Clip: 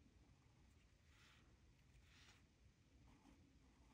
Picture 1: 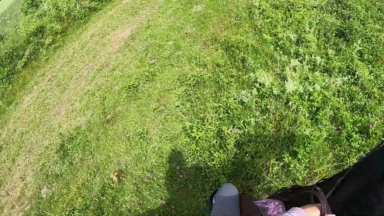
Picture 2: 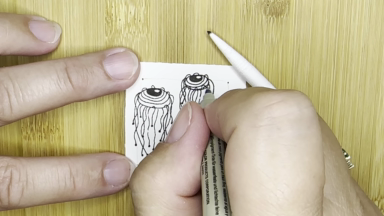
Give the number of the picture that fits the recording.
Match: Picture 2